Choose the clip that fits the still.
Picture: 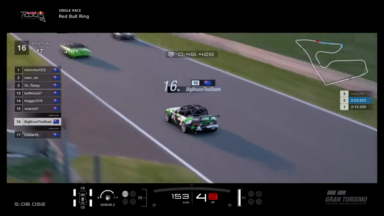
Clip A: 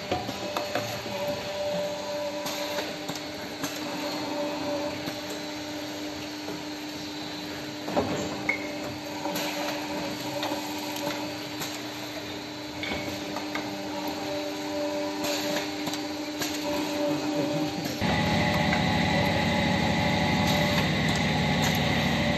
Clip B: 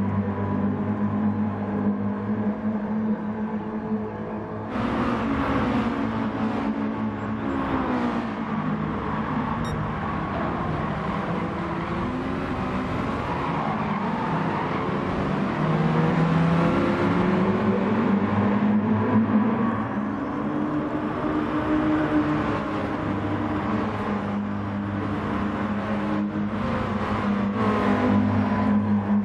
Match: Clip B